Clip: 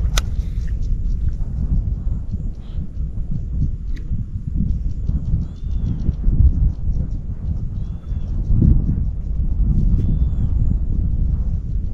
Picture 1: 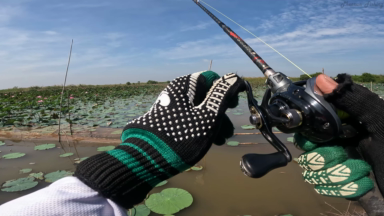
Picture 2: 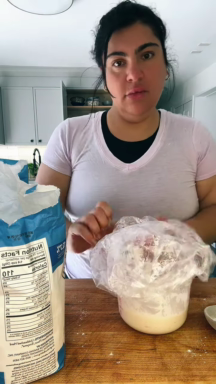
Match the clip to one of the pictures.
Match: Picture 1